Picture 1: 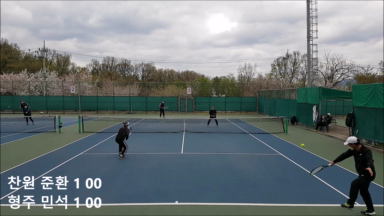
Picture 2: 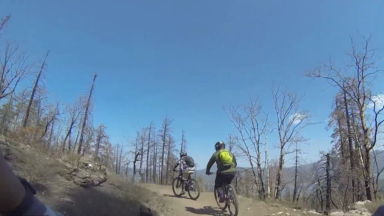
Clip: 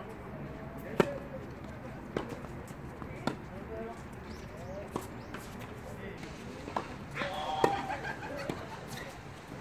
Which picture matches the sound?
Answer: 1